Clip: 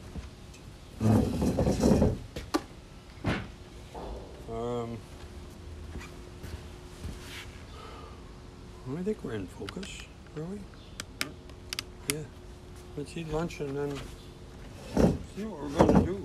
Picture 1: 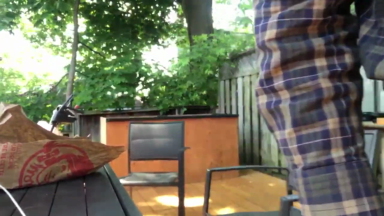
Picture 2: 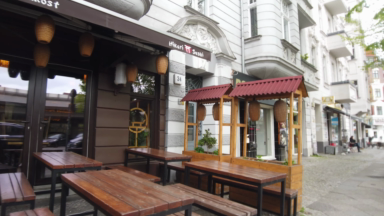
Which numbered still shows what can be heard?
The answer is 1